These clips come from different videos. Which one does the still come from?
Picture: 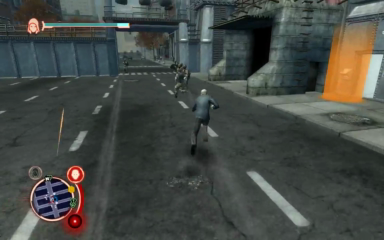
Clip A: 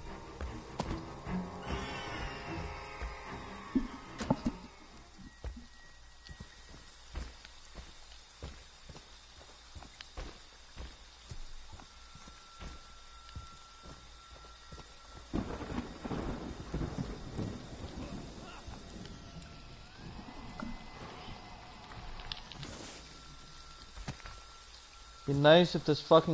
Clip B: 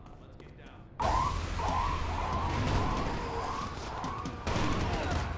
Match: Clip B